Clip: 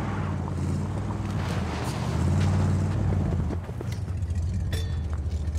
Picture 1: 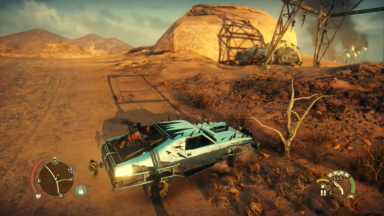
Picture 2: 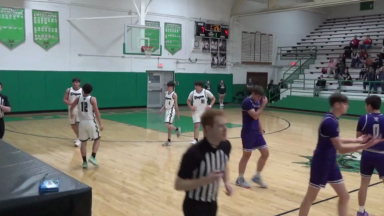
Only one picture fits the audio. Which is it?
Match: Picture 1